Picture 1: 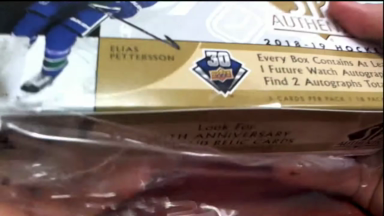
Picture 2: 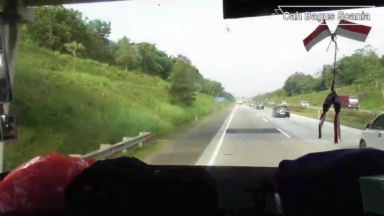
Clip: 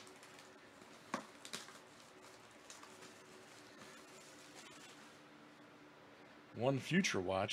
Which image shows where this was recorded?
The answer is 1